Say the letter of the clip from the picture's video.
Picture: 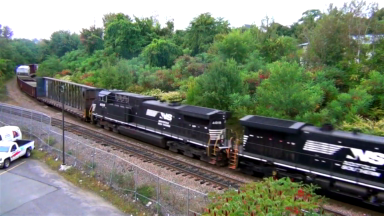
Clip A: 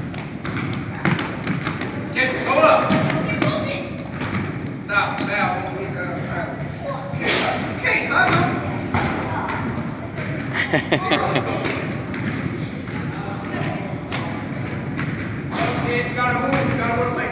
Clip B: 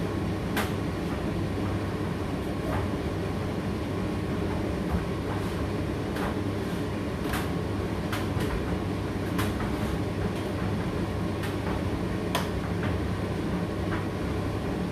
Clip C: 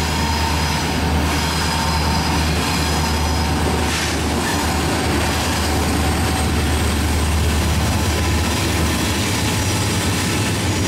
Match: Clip C